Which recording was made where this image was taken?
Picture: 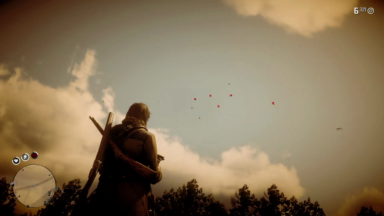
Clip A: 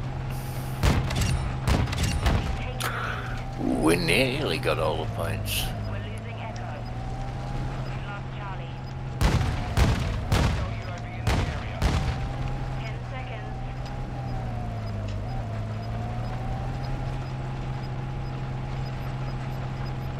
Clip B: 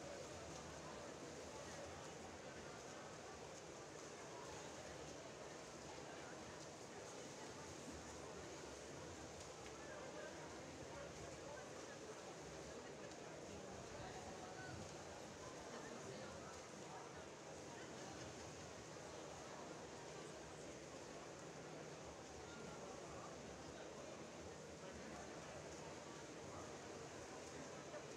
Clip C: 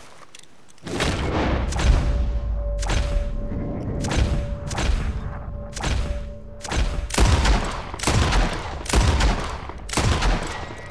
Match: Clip C